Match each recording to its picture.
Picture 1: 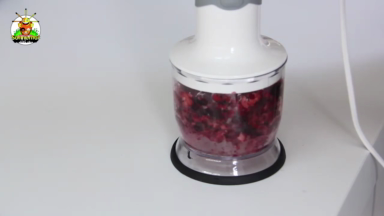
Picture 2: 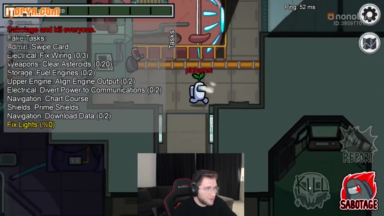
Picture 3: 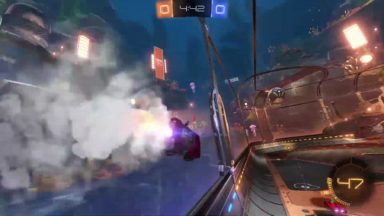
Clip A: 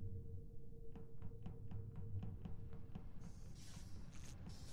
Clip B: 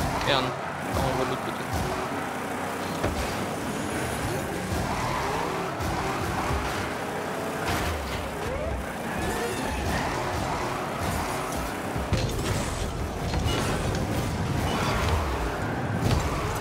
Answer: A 2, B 3